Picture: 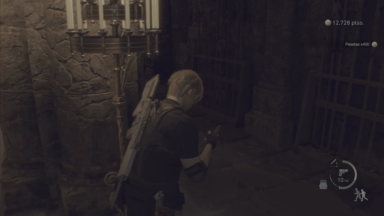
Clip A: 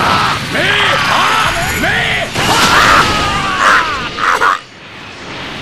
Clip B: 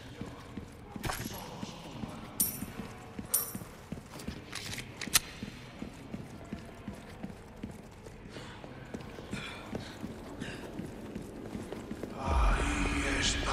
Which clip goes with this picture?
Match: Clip B